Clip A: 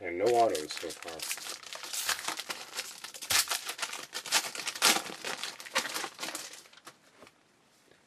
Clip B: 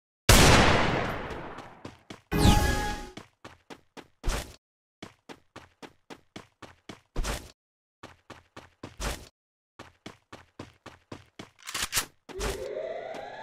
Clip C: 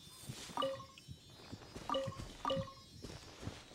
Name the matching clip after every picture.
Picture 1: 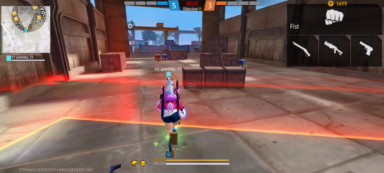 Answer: B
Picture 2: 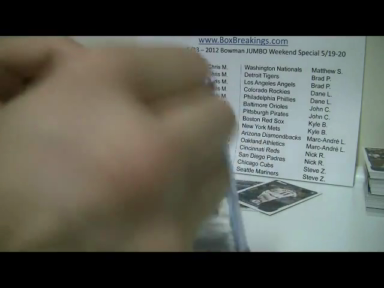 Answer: A